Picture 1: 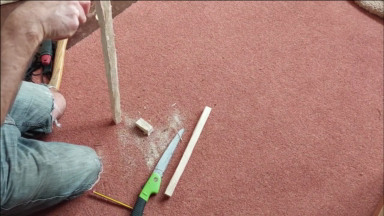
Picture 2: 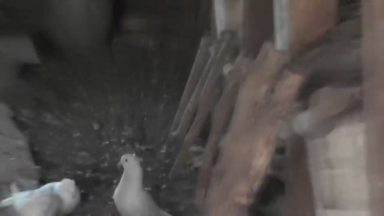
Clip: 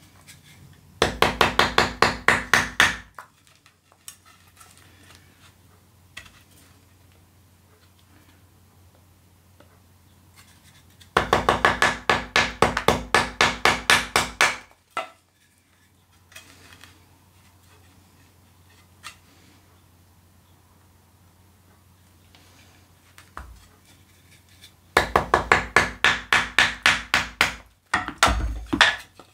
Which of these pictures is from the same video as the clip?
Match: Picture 1